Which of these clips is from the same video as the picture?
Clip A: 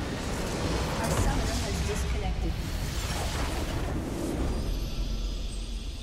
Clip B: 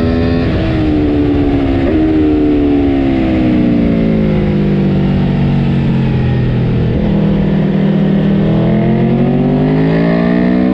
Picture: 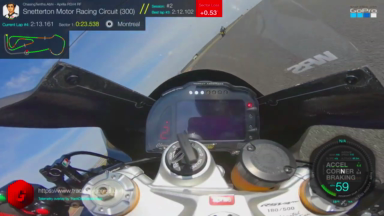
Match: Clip B